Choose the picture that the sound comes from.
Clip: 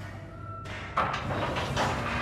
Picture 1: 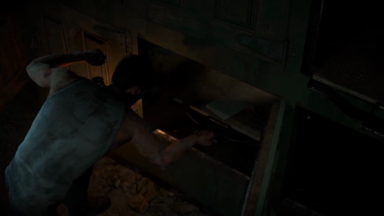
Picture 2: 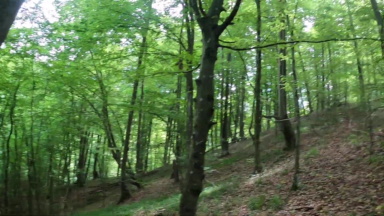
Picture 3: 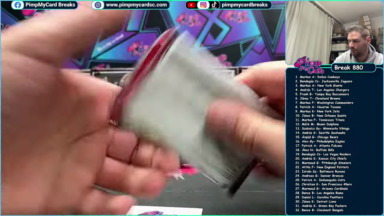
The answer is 1